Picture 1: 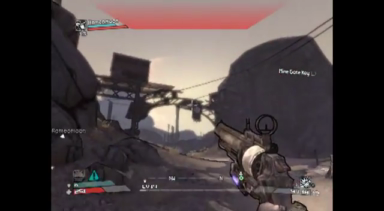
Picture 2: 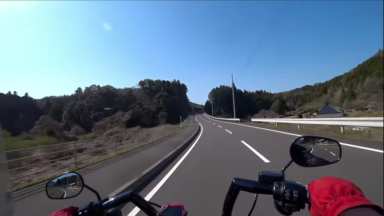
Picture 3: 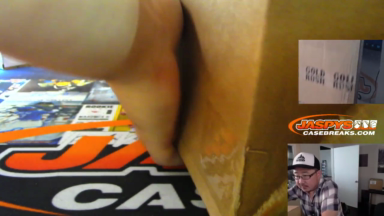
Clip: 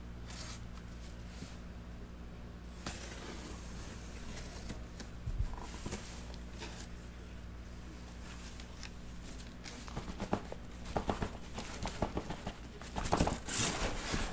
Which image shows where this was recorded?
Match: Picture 3